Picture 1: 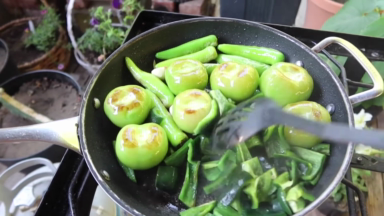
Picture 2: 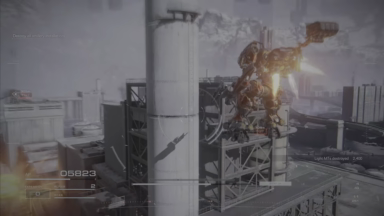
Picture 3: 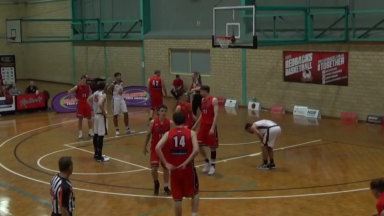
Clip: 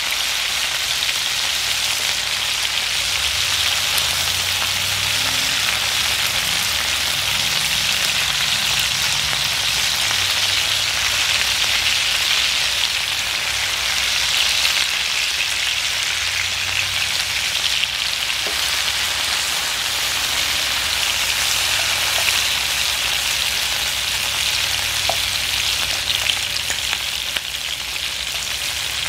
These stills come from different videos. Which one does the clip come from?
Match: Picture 1